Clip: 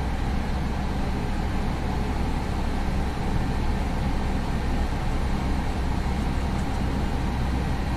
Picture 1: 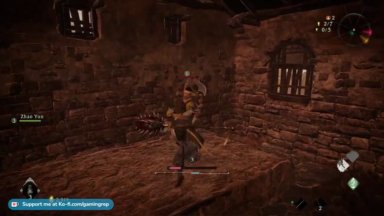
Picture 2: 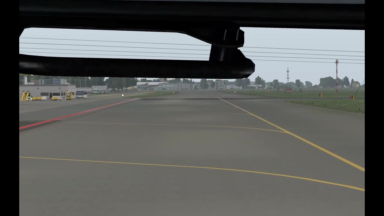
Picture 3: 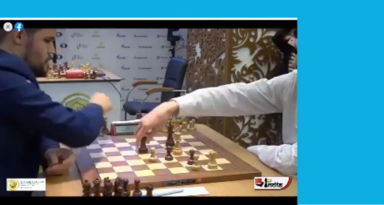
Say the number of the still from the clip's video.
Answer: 2